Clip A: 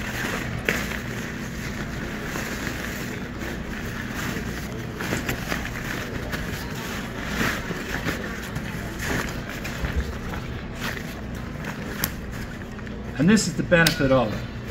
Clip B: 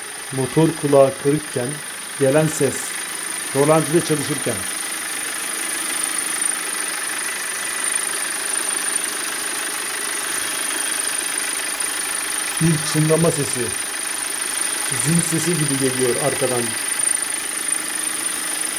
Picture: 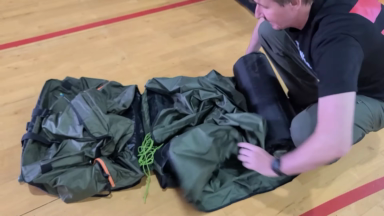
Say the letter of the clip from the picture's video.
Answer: A